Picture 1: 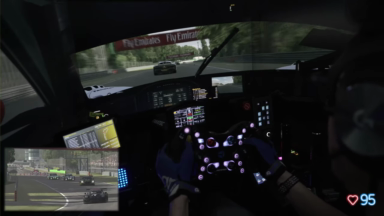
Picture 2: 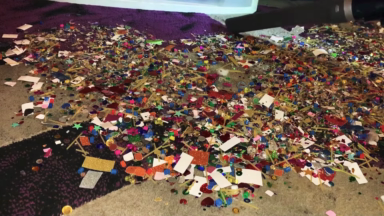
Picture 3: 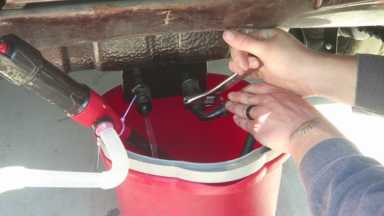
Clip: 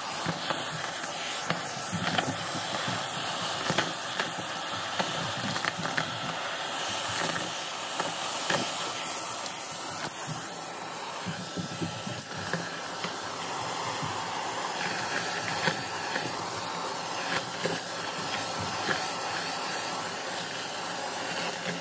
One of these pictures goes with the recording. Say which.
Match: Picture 2